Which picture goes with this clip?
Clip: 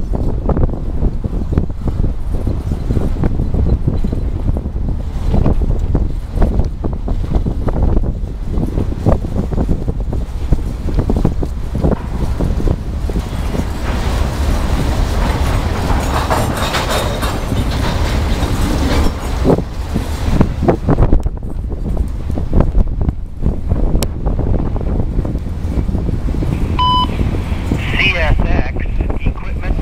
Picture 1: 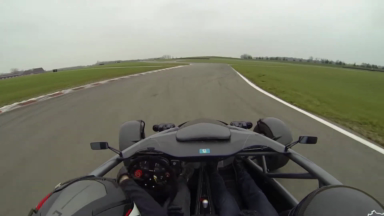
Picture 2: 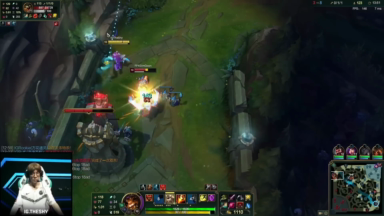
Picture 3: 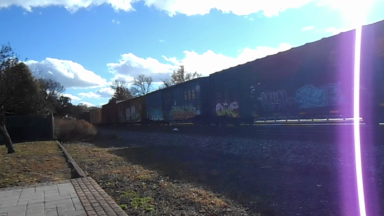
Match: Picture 3